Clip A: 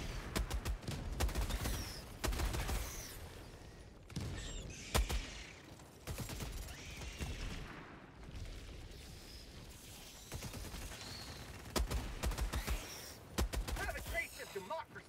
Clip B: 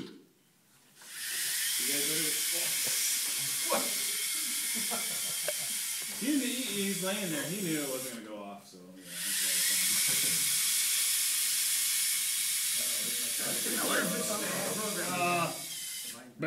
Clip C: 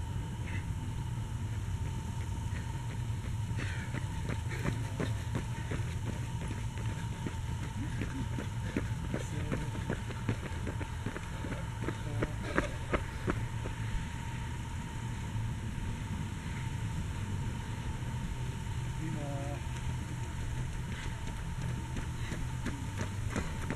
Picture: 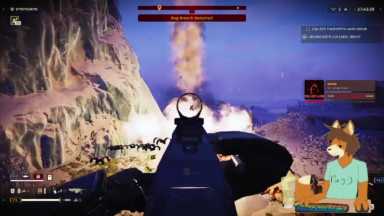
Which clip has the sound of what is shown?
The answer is A